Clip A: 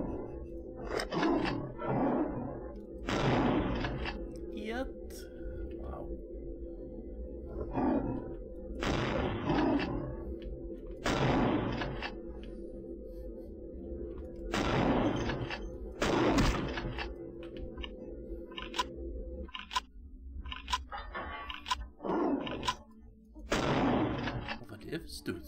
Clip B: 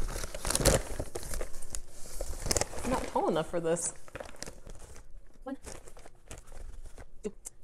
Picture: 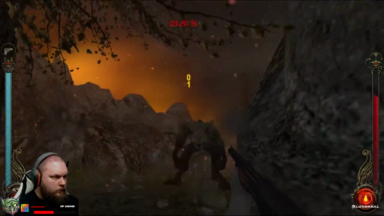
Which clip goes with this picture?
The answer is A